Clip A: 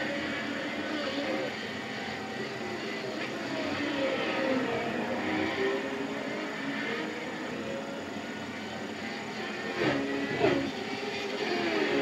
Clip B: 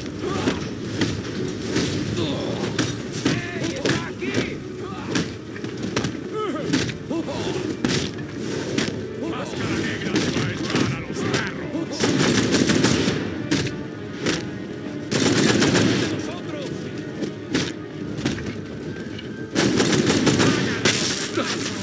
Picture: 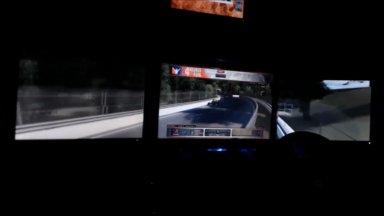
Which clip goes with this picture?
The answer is A